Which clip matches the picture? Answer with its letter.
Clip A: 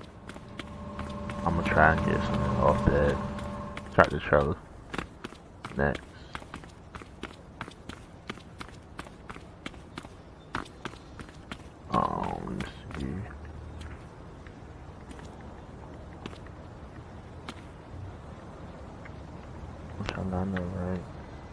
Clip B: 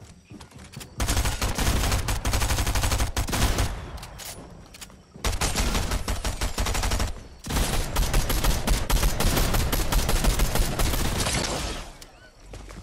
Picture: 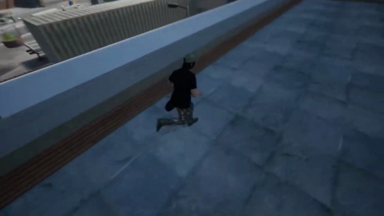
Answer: A